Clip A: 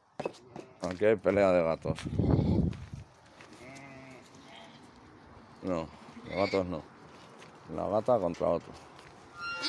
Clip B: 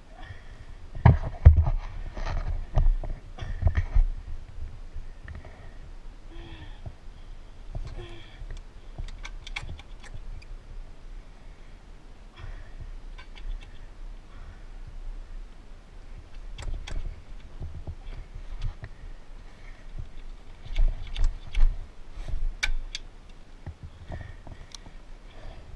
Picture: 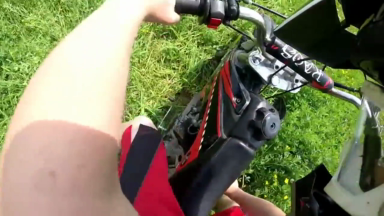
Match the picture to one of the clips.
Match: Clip B